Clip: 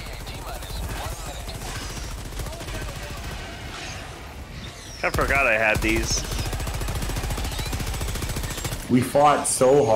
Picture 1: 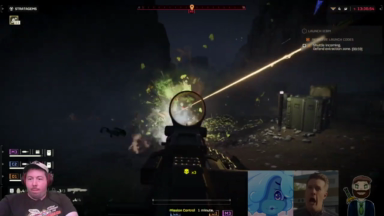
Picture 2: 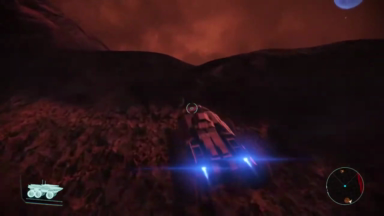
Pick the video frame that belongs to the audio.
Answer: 1